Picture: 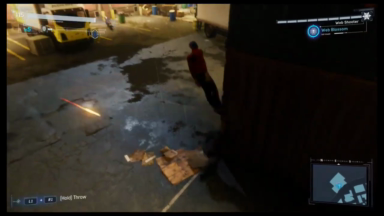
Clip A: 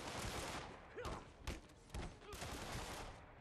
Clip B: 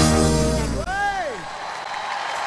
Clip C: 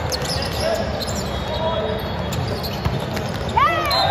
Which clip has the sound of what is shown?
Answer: A